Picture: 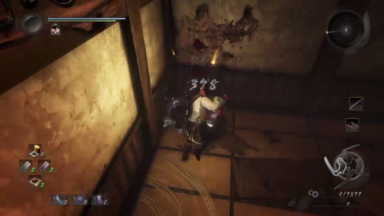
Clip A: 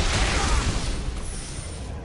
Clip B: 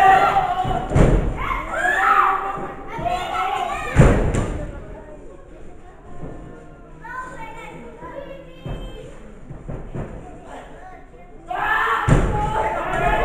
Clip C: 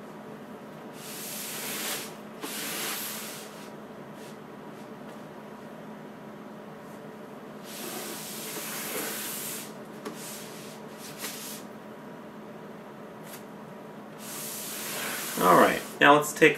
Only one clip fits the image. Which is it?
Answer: A